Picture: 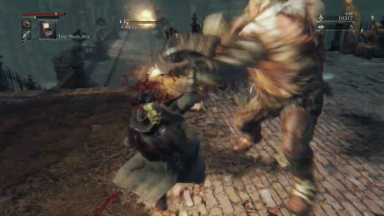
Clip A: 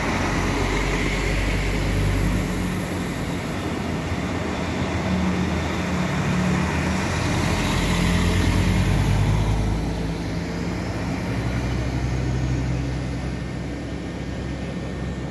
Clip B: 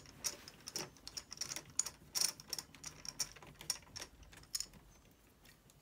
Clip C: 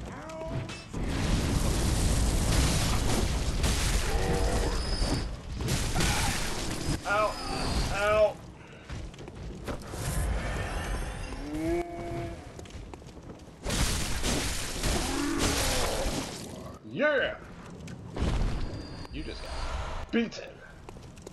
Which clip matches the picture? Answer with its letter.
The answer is C